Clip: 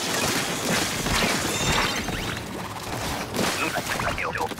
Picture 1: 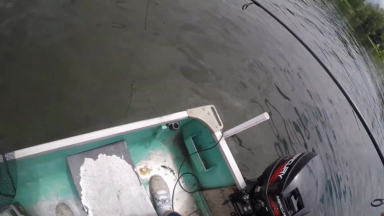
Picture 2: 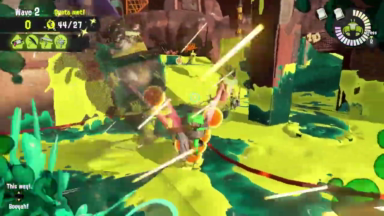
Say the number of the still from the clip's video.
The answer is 2